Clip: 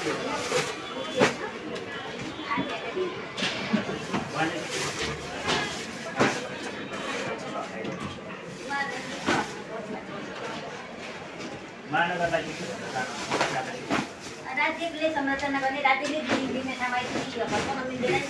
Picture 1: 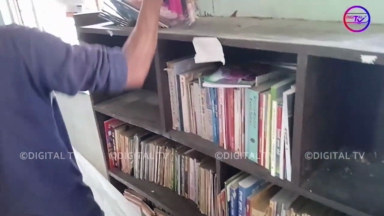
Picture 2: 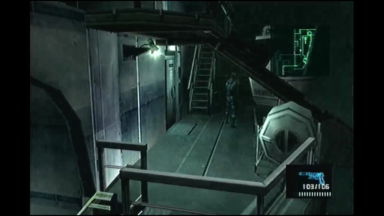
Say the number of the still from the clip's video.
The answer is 1